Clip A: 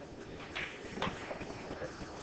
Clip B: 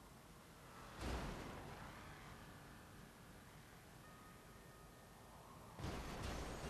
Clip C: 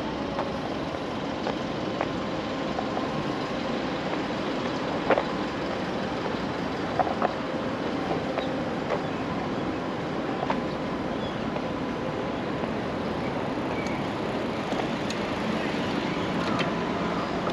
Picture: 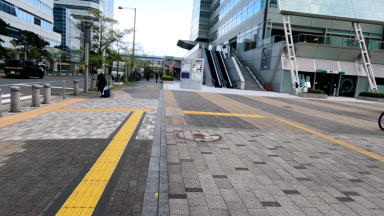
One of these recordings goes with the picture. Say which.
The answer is C